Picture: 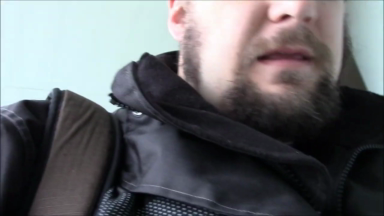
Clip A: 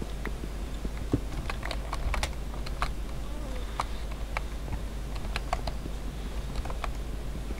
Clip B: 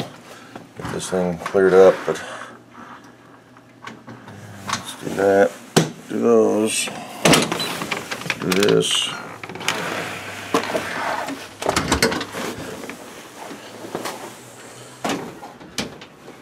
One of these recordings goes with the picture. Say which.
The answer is B